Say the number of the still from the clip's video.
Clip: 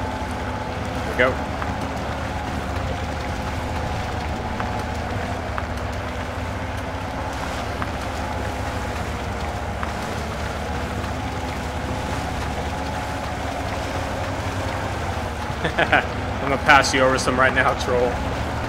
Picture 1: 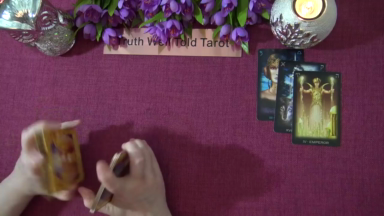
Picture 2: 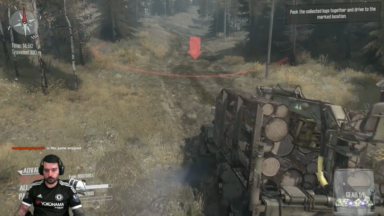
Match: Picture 2